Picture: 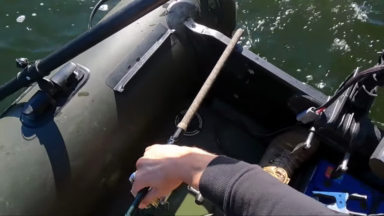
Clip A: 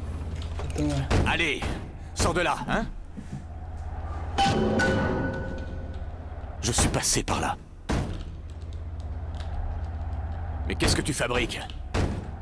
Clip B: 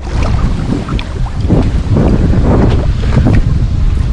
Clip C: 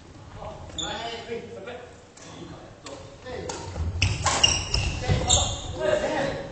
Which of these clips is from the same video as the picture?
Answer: B